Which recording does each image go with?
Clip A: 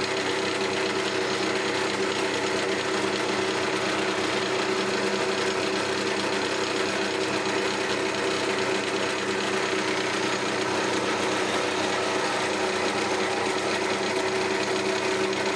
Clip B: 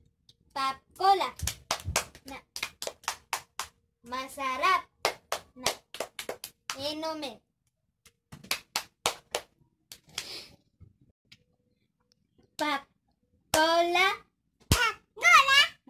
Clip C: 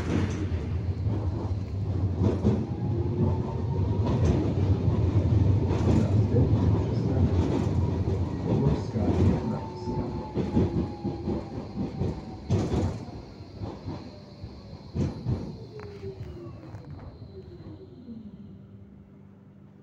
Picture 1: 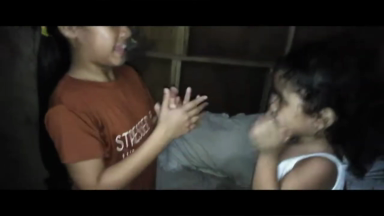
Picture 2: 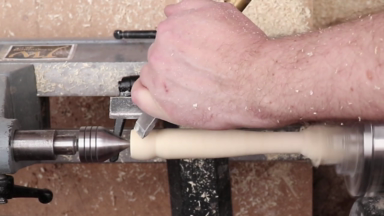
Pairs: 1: B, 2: A